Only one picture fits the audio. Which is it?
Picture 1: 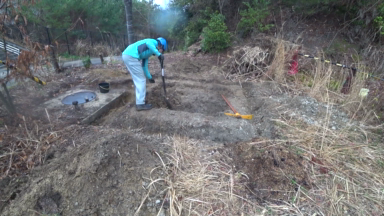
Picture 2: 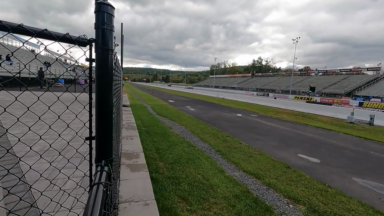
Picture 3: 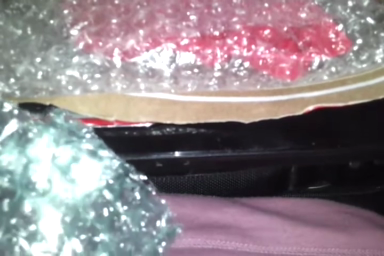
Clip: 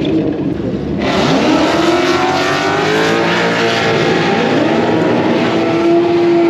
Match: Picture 2